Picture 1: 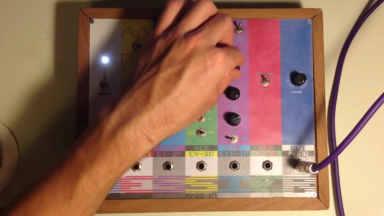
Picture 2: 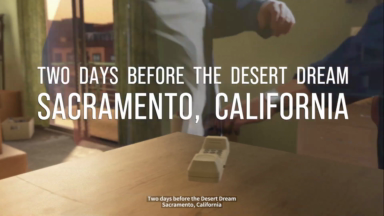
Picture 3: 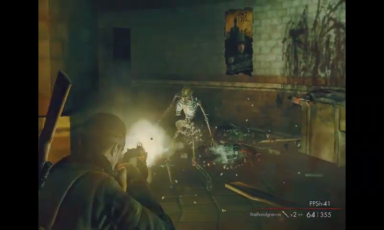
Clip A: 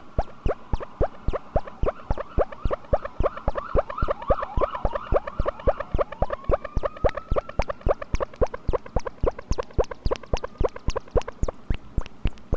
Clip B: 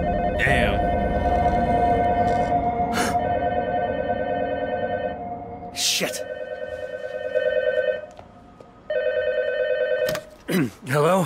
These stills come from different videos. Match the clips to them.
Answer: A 1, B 2